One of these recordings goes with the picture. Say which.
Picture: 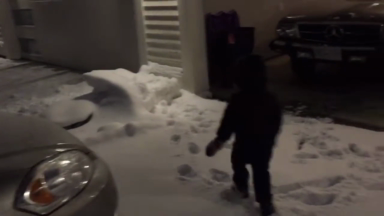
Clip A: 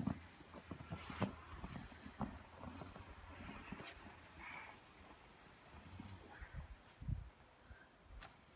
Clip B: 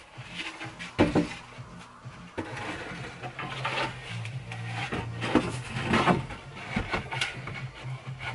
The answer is A